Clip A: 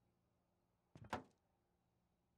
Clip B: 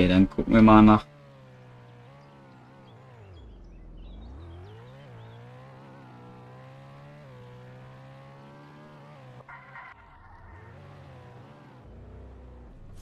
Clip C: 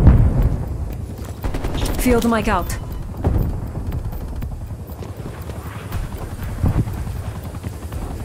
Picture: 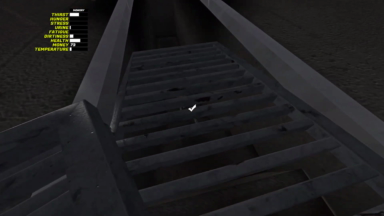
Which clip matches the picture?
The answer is A